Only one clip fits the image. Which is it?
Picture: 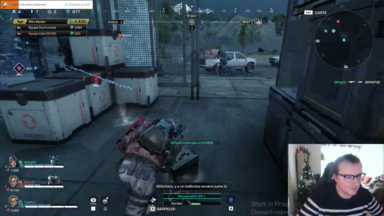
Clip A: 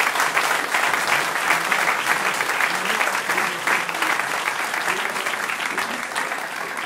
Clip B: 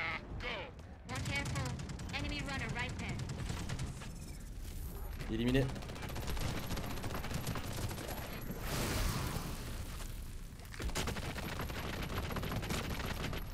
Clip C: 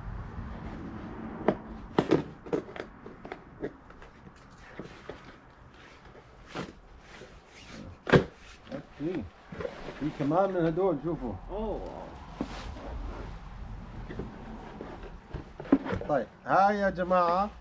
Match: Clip B